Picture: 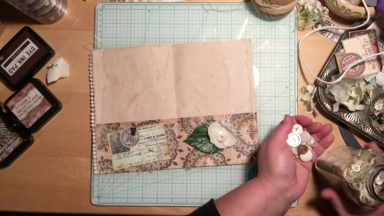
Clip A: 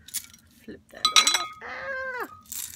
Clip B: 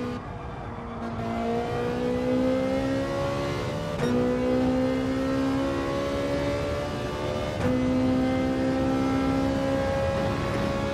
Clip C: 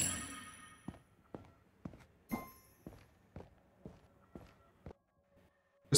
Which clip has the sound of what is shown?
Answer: A